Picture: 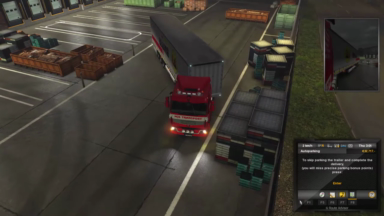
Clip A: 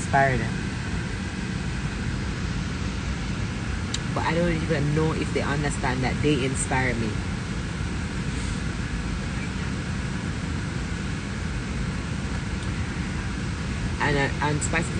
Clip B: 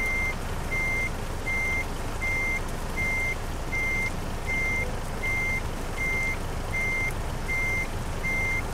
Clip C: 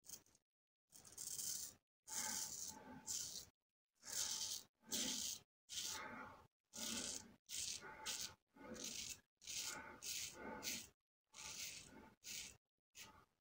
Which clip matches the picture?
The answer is B